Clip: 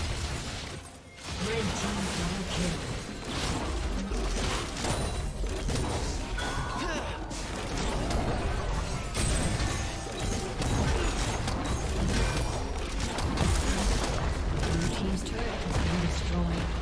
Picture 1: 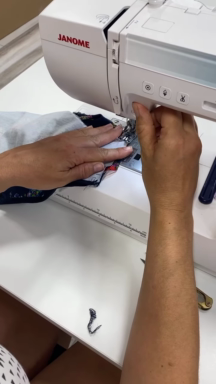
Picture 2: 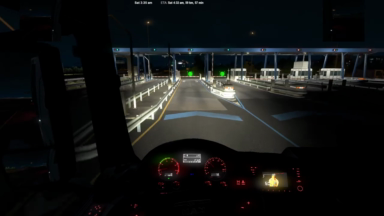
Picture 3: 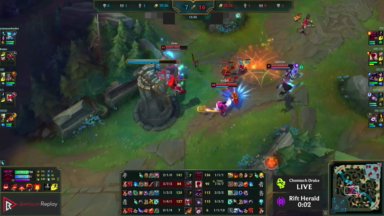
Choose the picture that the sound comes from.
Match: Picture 3